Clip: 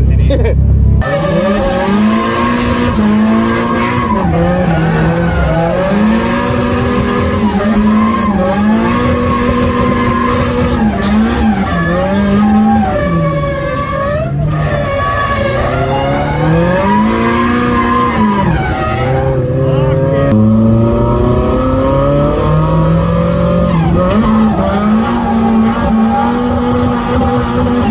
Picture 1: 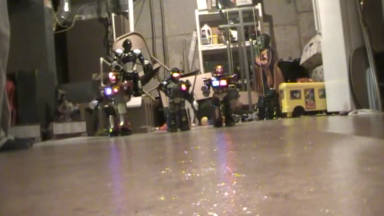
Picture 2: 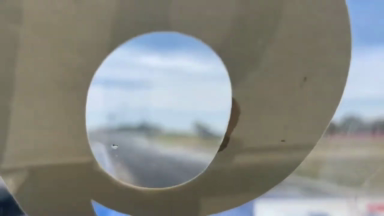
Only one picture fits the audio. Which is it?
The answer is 2